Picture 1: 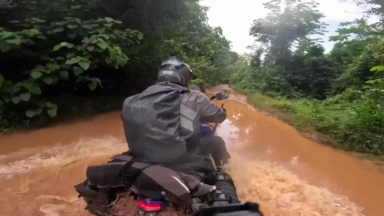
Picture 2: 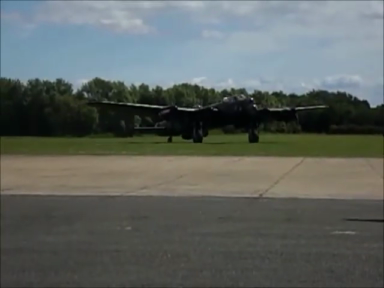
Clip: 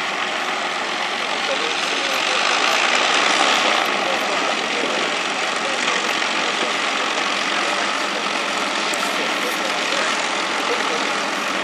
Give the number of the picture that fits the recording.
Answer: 2